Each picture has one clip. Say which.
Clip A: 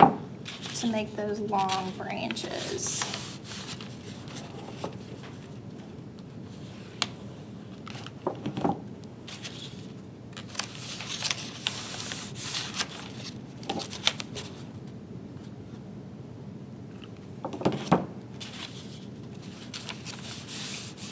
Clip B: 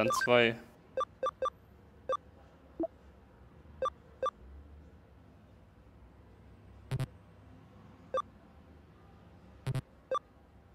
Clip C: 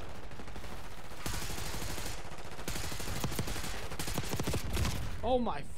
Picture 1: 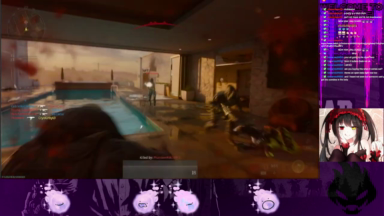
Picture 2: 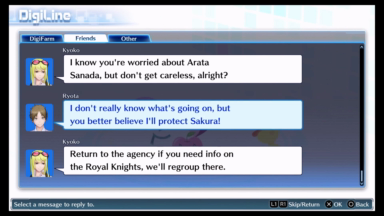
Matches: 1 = C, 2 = B